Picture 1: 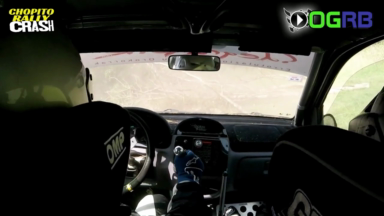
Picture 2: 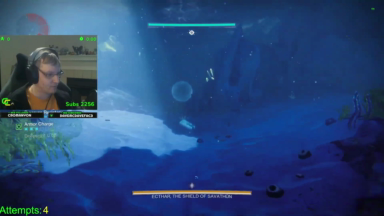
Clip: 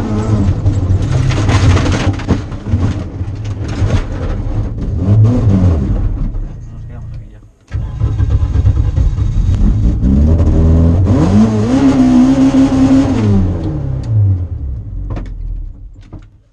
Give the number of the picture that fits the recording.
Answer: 1